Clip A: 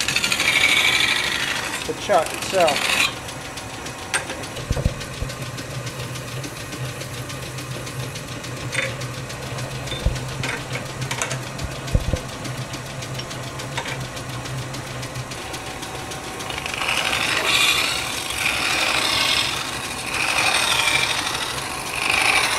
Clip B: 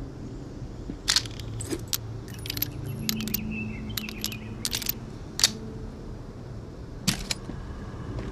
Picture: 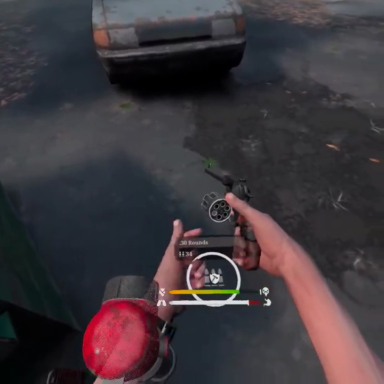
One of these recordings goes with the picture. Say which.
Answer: B